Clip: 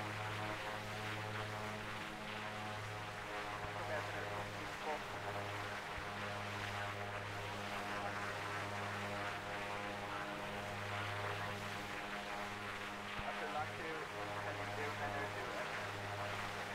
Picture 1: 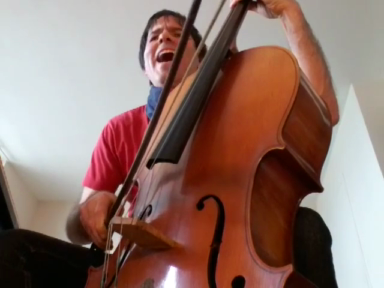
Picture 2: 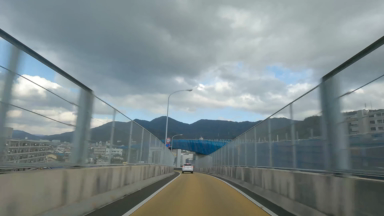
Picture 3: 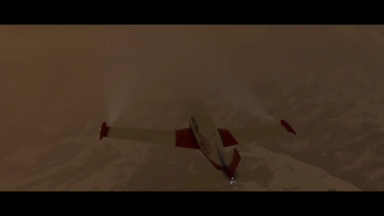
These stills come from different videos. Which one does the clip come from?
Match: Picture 3